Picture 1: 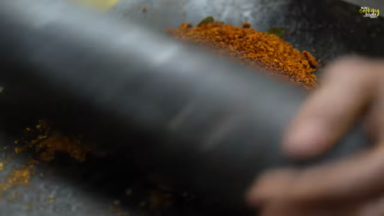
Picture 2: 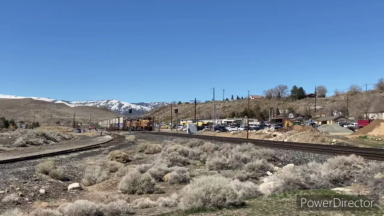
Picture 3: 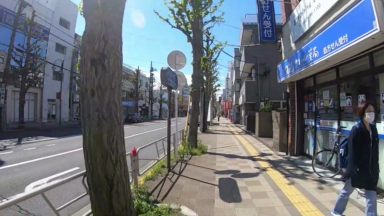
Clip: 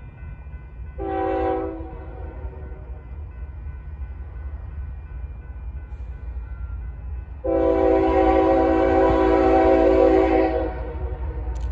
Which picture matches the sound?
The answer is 2